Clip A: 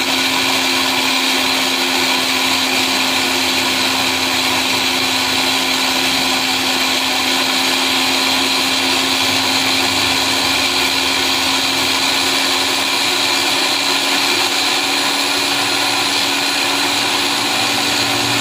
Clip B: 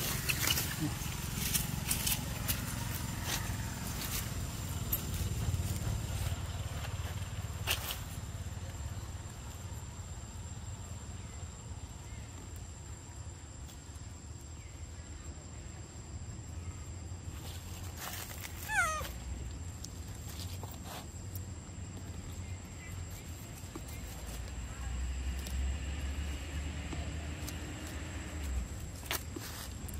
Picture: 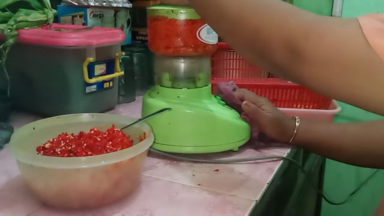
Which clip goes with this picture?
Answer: A